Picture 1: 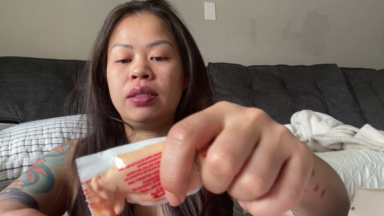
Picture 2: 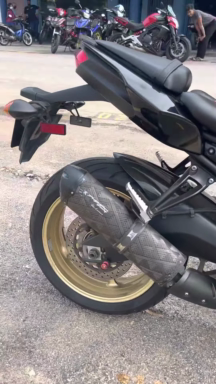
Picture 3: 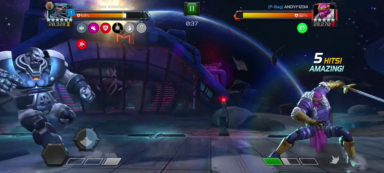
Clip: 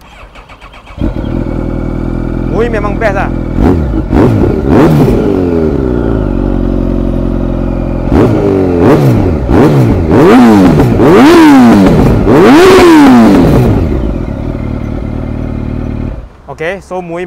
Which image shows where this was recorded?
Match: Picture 2